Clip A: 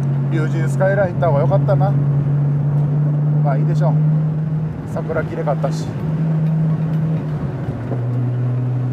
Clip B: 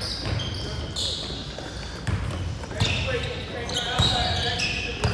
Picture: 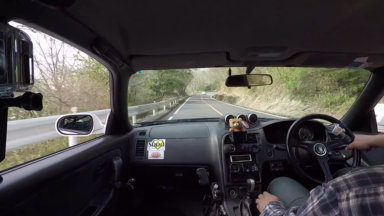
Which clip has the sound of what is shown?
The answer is A